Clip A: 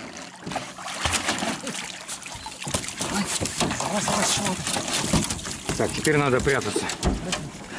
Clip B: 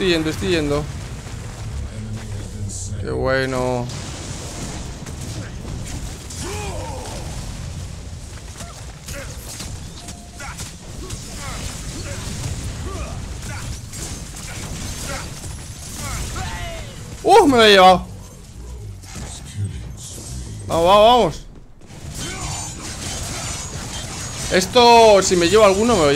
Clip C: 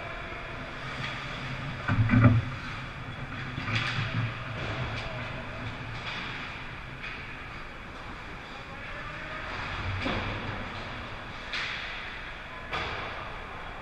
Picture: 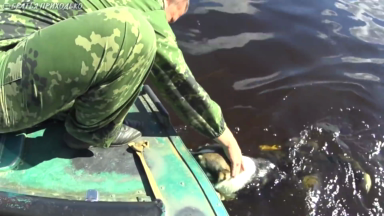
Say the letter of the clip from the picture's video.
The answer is A